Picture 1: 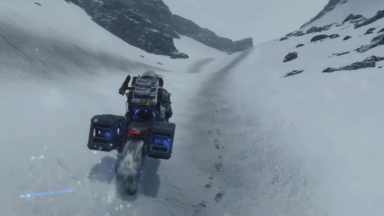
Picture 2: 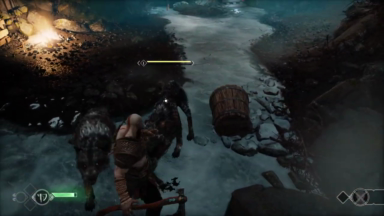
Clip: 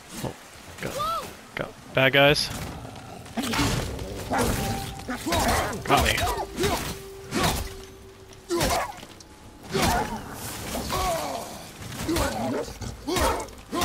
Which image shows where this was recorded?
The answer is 2